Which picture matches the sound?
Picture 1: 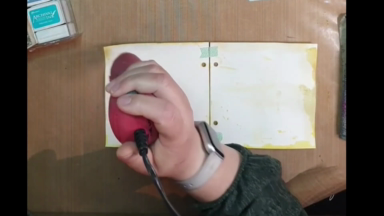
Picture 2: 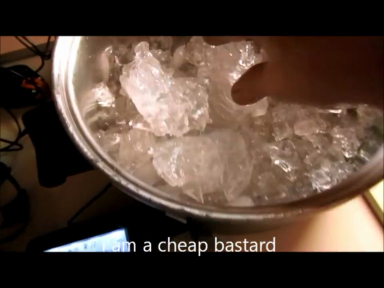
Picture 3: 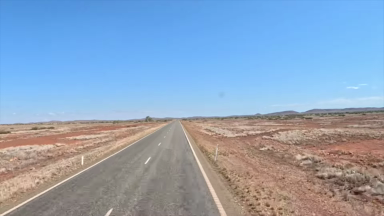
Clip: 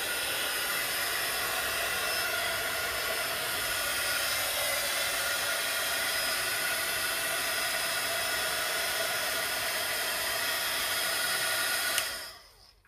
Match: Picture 1